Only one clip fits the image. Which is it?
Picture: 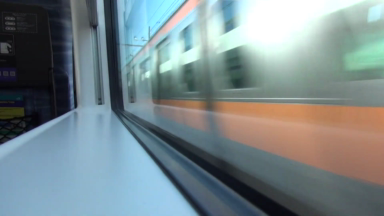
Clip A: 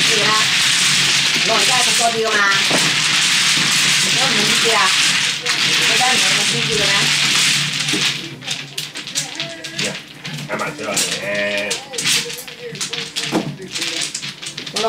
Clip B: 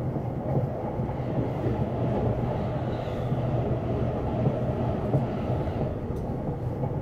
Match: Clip B